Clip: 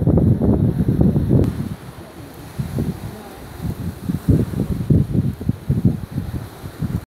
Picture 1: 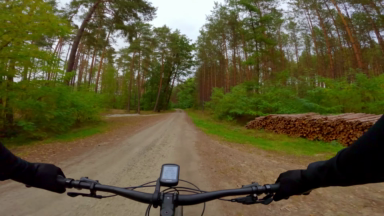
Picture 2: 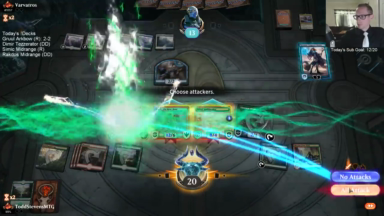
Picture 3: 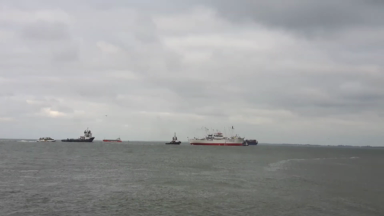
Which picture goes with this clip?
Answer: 3